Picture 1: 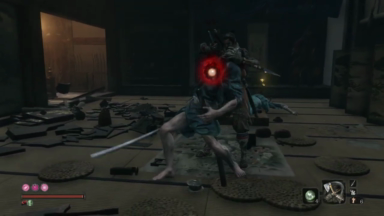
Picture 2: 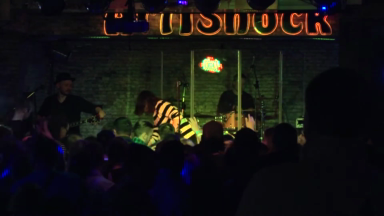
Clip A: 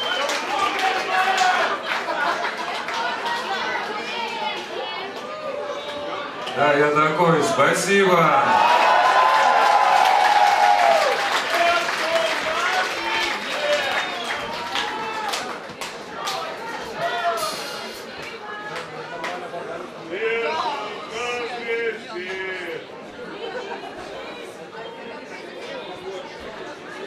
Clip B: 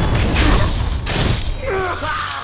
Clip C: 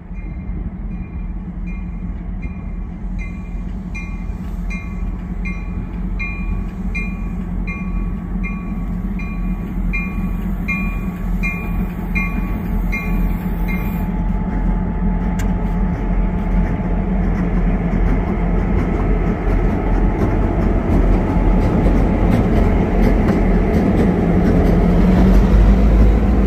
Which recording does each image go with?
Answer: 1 B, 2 A